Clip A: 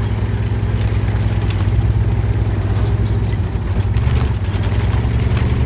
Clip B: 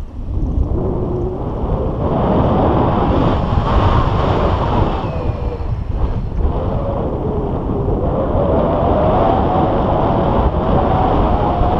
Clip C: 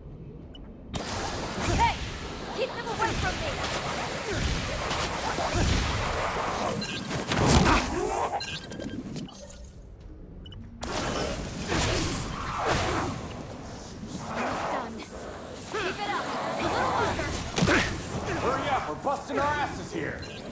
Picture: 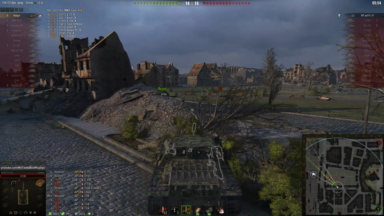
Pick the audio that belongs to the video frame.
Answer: A